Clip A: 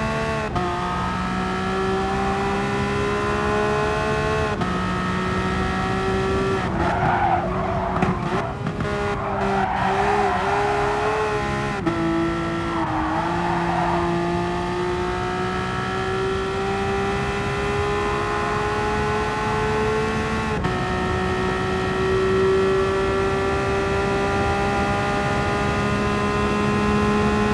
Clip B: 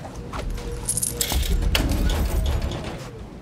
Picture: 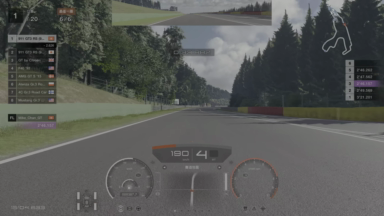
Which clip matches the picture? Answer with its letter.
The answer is A